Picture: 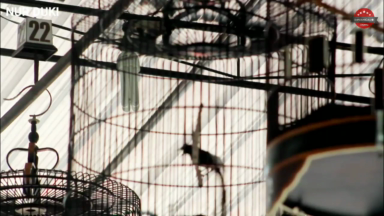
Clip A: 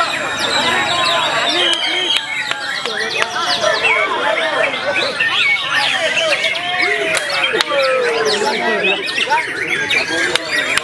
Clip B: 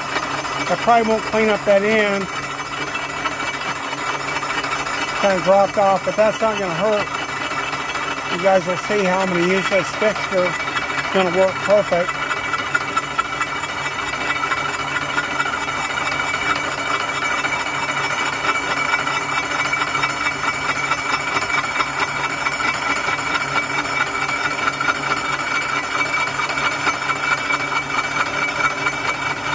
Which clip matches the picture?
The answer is A